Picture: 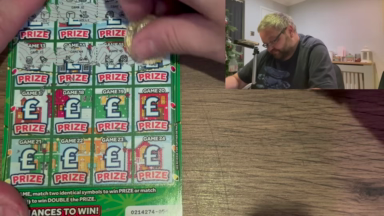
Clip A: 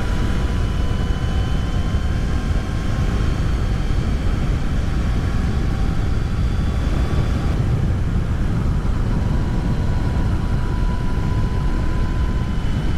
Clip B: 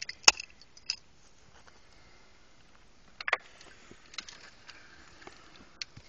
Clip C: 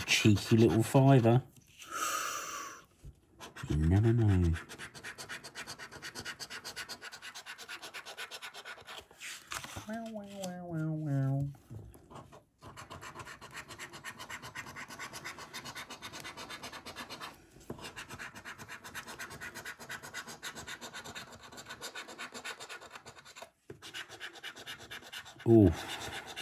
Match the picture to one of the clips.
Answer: C